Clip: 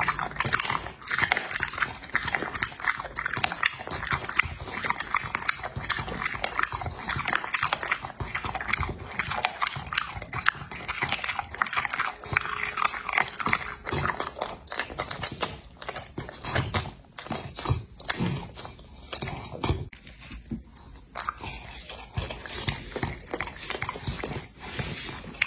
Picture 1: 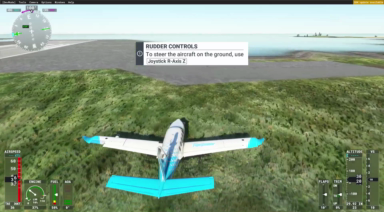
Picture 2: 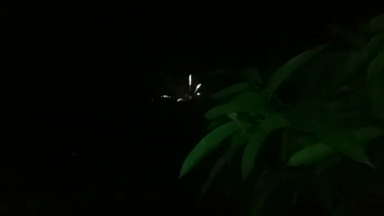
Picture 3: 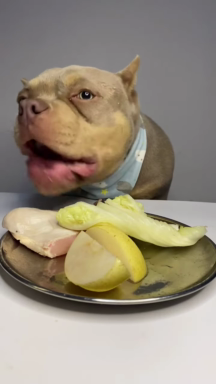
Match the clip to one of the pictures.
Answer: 3